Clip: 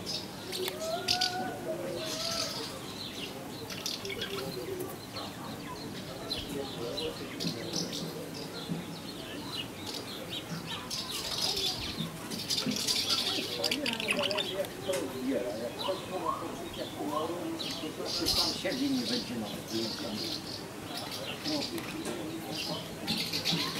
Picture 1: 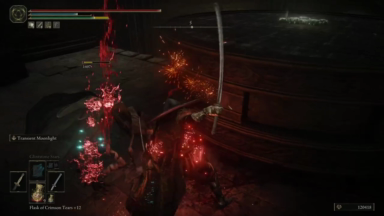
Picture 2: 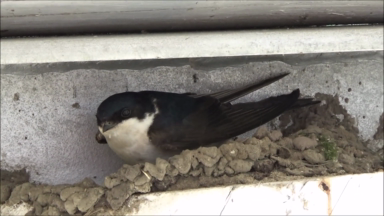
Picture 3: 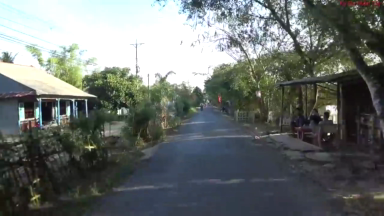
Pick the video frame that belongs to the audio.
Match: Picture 2